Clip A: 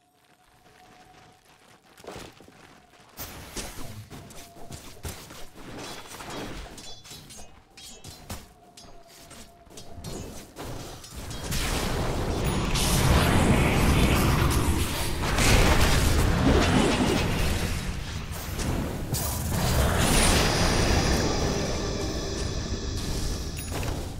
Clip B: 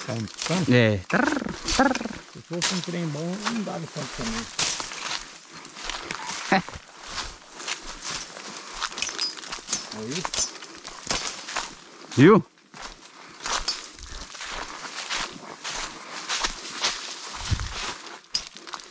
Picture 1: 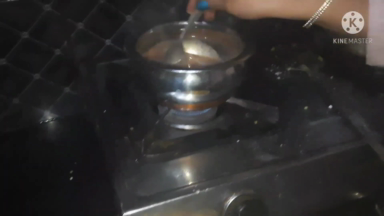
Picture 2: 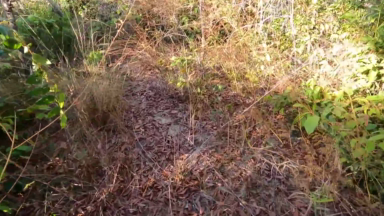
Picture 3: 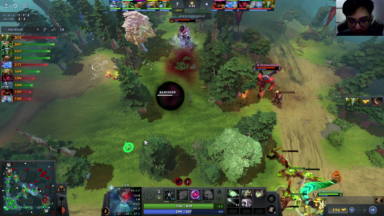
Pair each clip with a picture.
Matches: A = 3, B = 2